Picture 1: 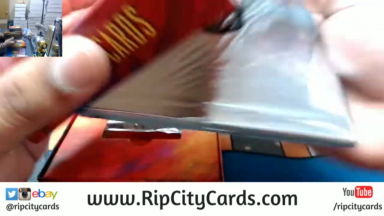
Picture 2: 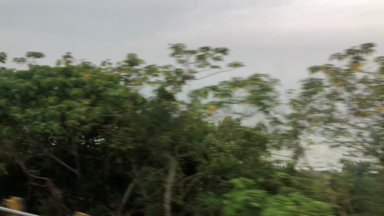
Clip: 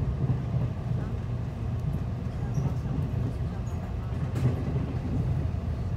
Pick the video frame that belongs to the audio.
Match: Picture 2